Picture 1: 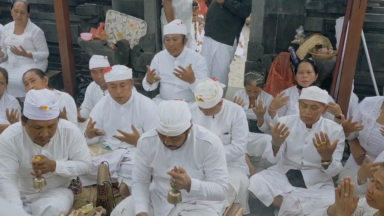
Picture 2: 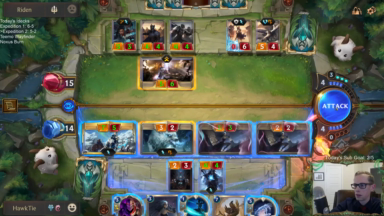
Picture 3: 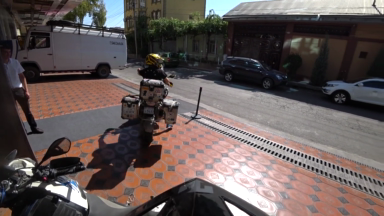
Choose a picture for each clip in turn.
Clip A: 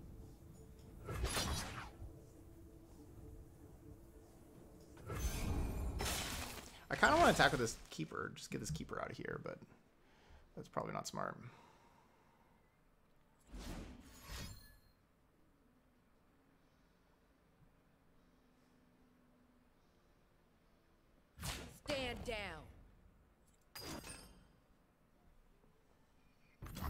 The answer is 2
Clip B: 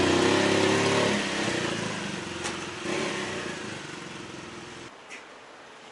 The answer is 3